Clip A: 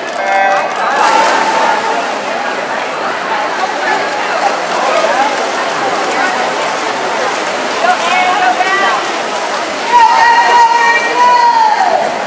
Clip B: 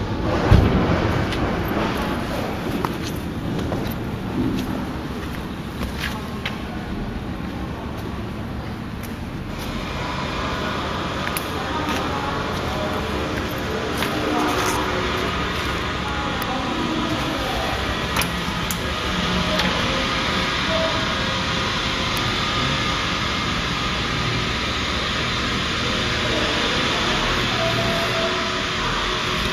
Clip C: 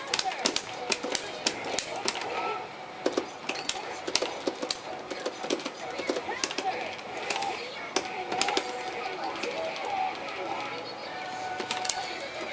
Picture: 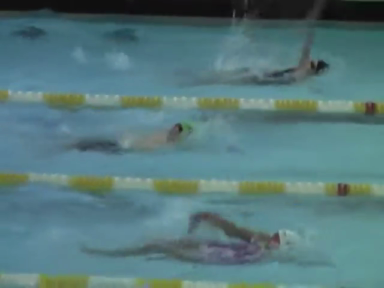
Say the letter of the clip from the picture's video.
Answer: A